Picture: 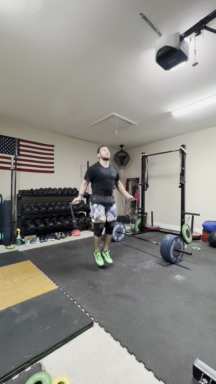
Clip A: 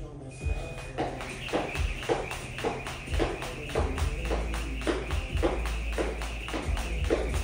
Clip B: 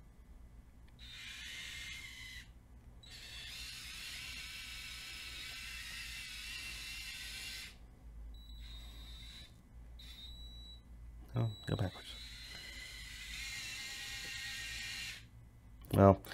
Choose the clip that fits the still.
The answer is A